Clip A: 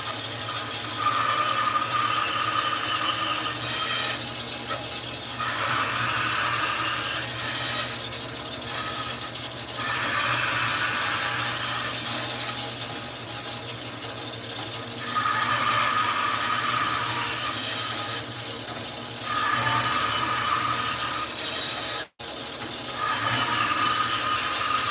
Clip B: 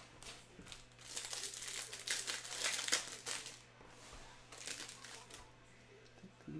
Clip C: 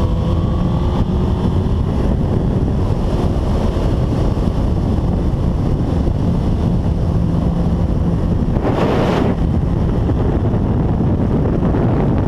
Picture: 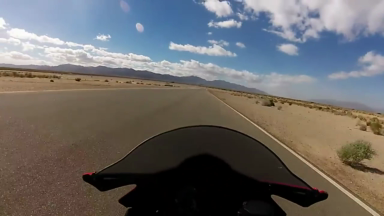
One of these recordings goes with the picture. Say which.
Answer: C